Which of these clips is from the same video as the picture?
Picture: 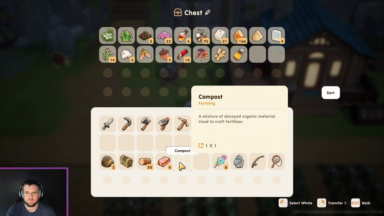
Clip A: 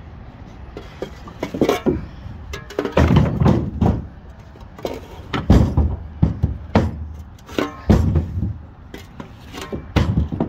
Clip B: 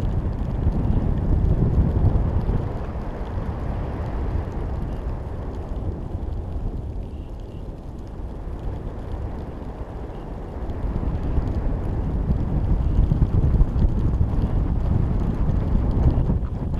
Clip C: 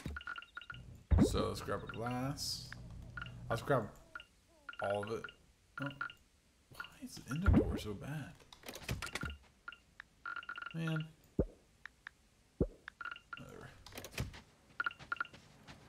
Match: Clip C